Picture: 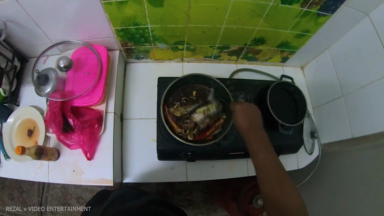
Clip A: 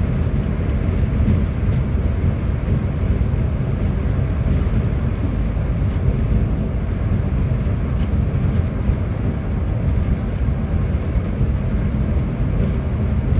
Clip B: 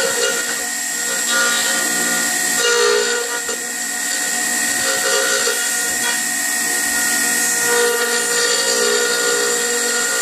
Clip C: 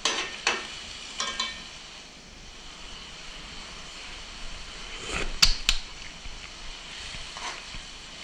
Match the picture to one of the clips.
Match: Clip C